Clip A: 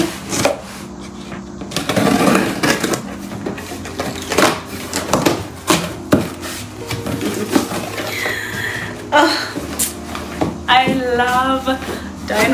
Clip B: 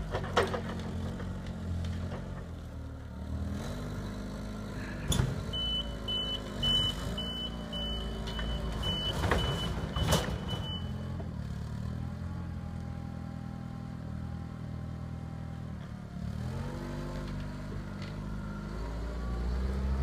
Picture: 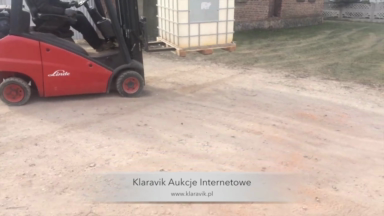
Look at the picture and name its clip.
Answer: B